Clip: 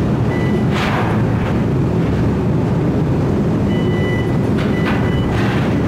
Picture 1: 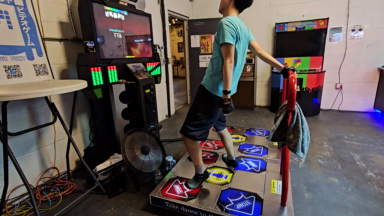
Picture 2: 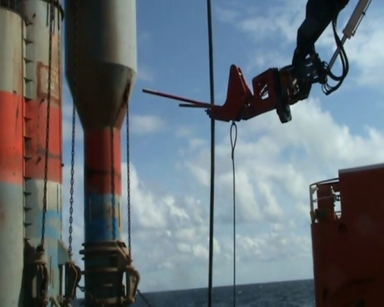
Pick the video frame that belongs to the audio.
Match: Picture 2